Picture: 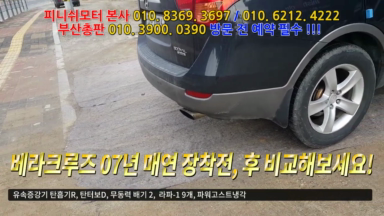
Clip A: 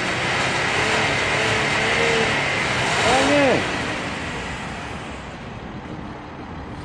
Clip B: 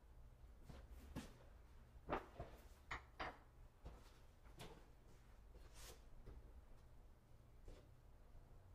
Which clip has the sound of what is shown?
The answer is A